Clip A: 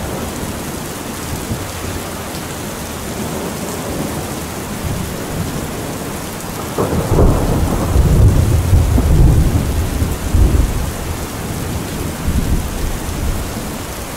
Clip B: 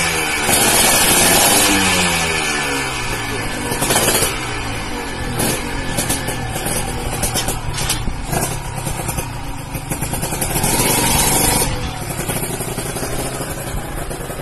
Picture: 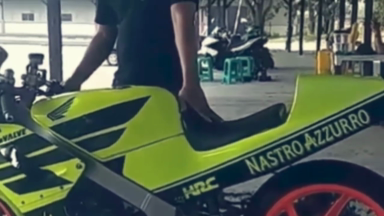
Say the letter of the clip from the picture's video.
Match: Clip B